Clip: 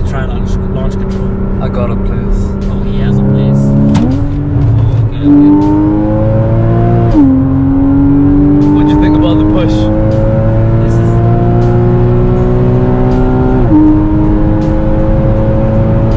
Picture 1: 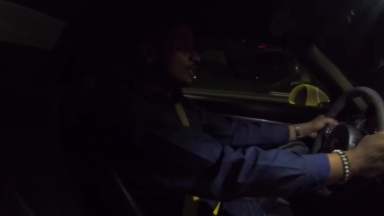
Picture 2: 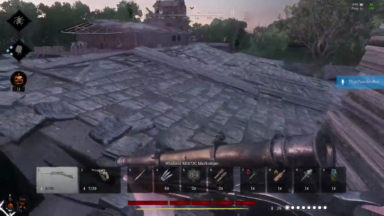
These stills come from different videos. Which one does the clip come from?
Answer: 1